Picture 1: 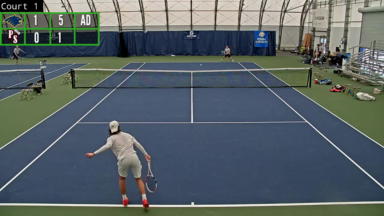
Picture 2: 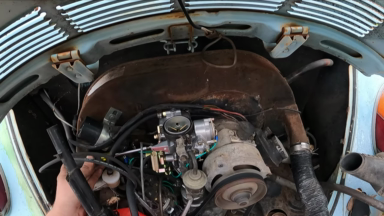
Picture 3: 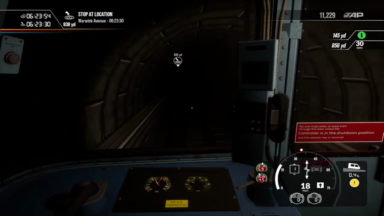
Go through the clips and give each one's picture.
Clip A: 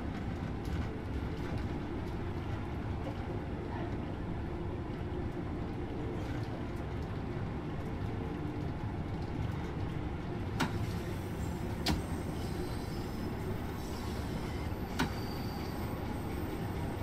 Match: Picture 3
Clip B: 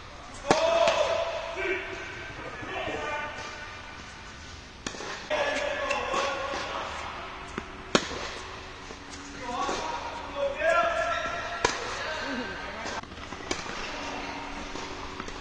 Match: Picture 1